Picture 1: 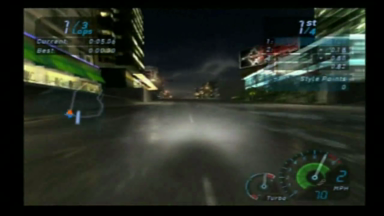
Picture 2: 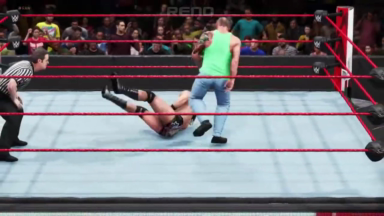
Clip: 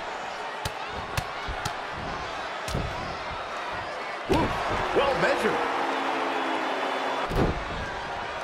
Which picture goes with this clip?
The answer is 2